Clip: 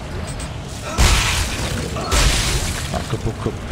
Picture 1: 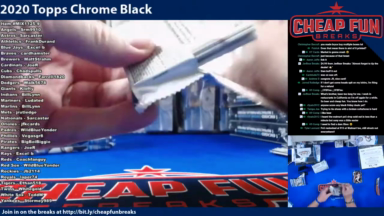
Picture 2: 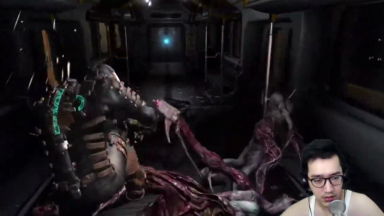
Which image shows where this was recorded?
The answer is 2